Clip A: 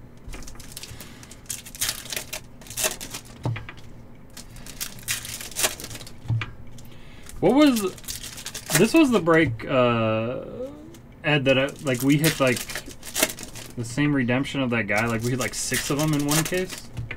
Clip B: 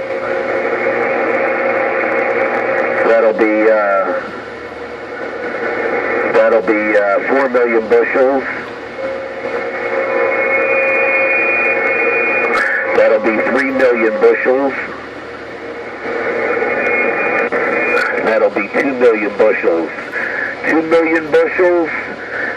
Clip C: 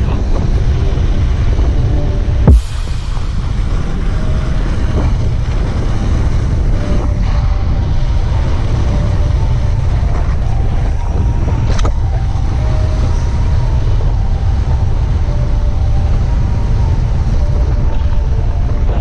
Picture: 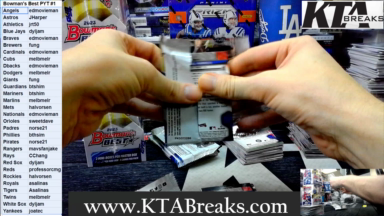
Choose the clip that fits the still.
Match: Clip A